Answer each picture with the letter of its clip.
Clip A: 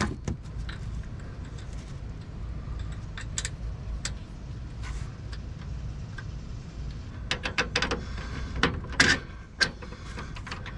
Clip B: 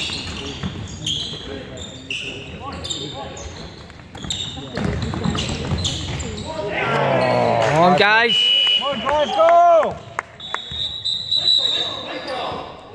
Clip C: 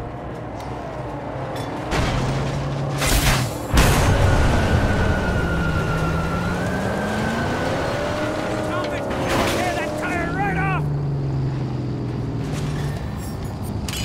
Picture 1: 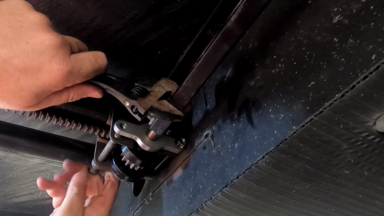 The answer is A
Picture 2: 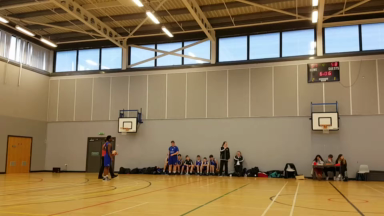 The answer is B